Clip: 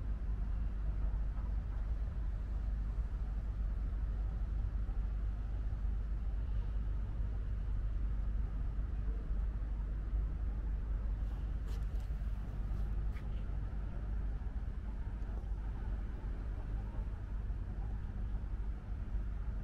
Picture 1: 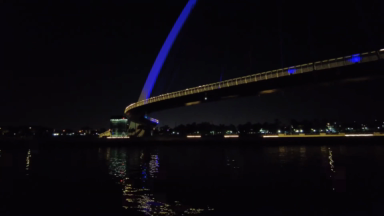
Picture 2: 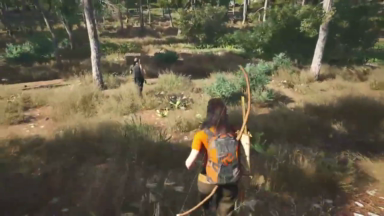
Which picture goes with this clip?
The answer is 1